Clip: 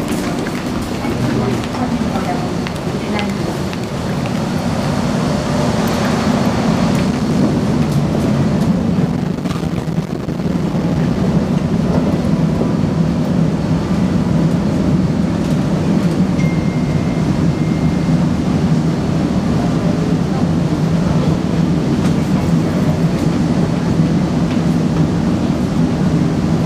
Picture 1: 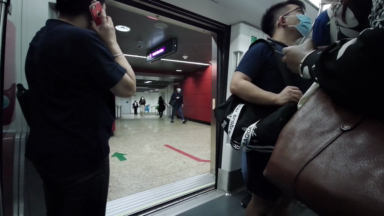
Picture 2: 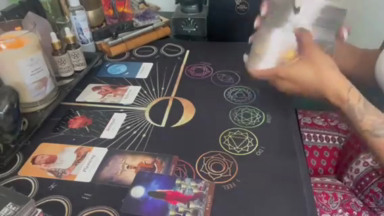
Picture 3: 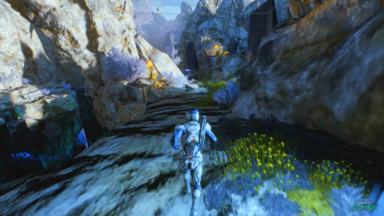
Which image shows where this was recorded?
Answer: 1